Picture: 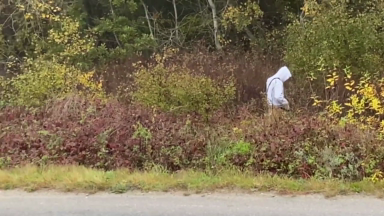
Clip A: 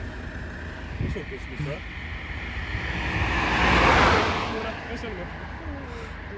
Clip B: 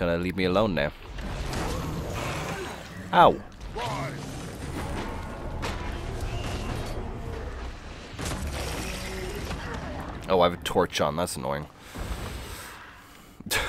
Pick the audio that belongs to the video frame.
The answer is A